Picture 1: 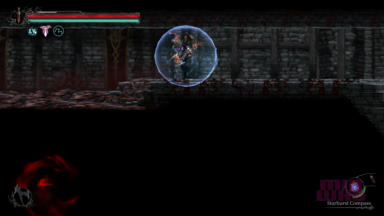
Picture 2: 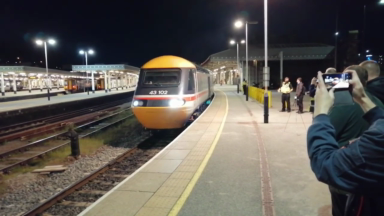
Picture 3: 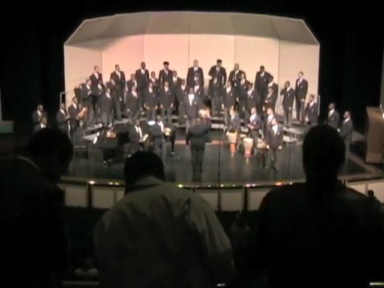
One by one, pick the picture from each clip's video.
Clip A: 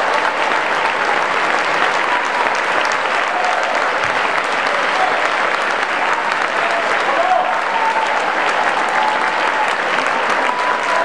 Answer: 3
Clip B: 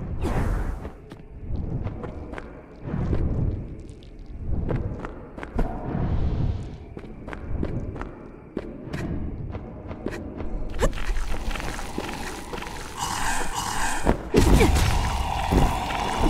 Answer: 1